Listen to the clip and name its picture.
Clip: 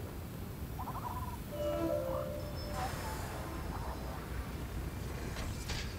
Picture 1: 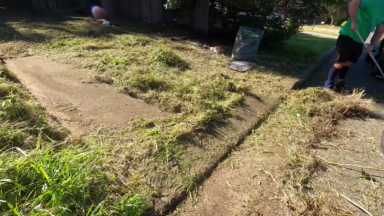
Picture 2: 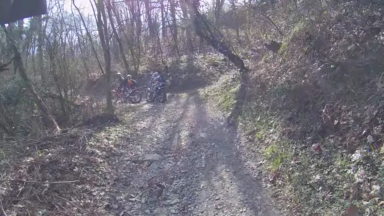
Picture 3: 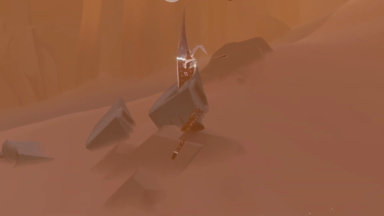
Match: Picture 3